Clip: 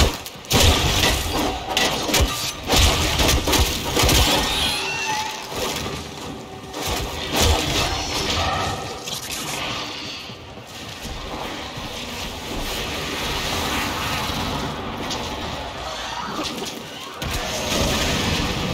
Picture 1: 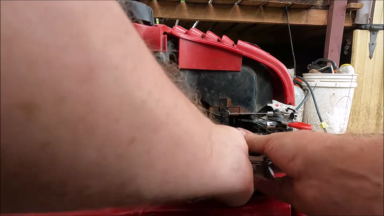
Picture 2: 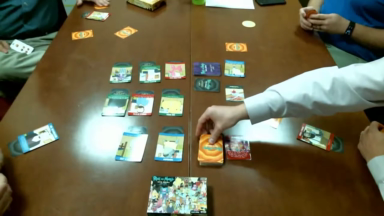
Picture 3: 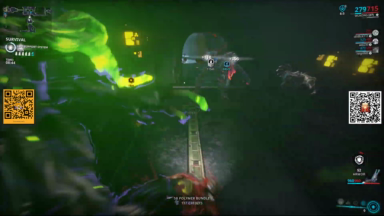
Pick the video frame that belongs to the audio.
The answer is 3